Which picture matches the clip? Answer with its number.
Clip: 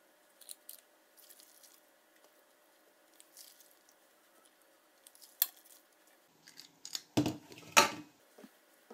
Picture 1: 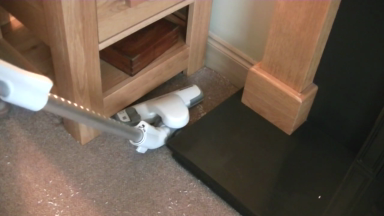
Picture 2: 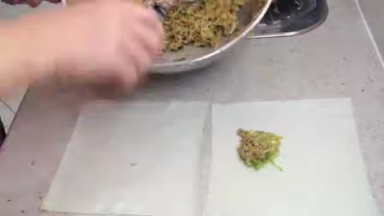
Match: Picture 2